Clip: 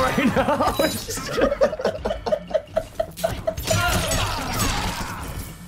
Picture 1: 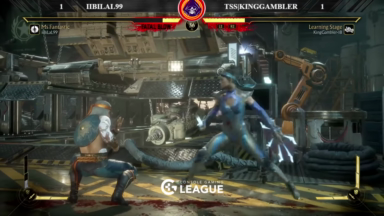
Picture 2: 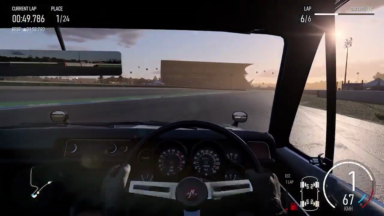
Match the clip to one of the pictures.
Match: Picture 1